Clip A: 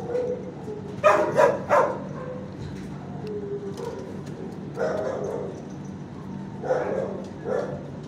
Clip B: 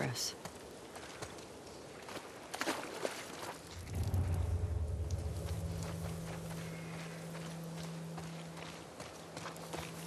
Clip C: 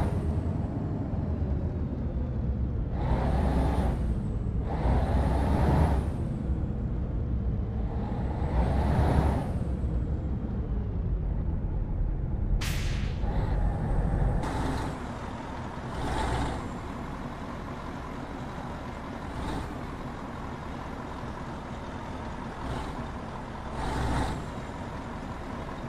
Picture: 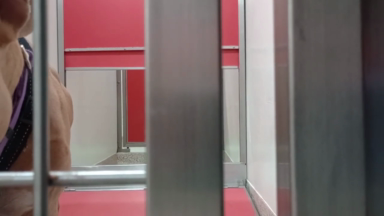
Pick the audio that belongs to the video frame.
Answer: A